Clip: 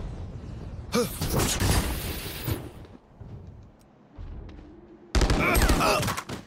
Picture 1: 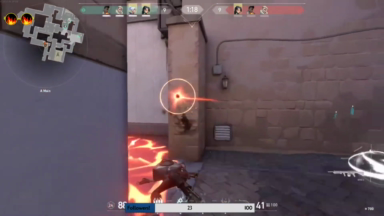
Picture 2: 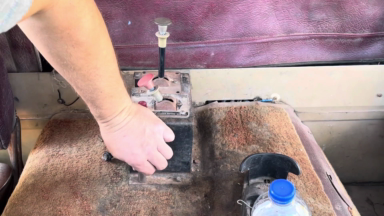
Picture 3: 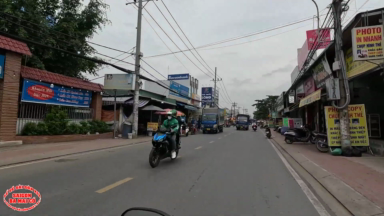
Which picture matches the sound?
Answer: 1